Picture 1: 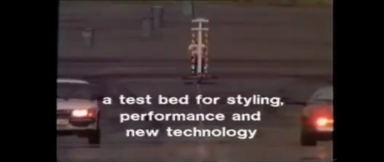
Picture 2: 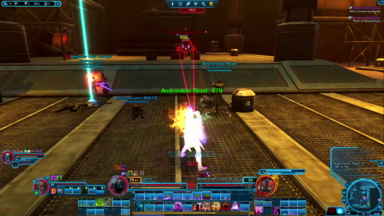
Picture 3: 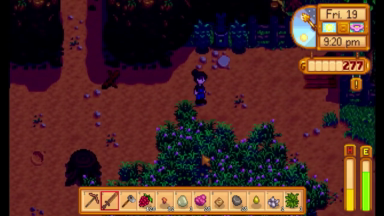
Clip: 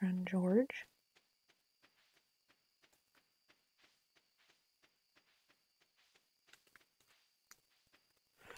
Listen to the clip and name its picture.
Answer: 3